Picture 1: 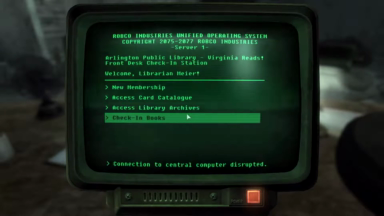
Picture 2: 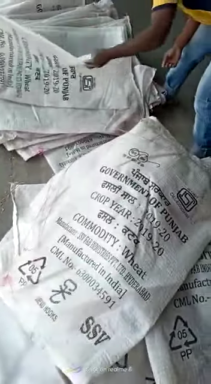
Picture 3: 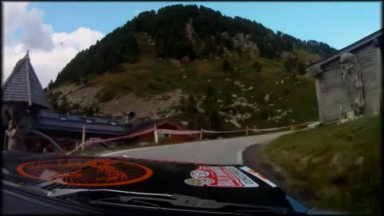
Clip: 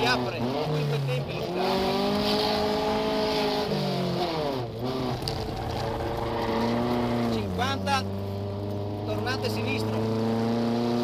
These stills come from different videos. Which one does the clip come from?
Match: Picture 3